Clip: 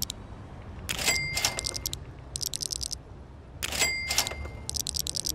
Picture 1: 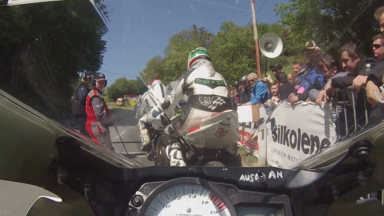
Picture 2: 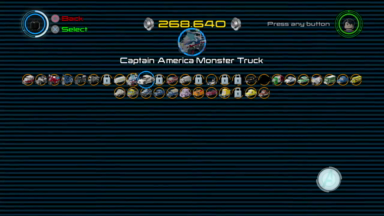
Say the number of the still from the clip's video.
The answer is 2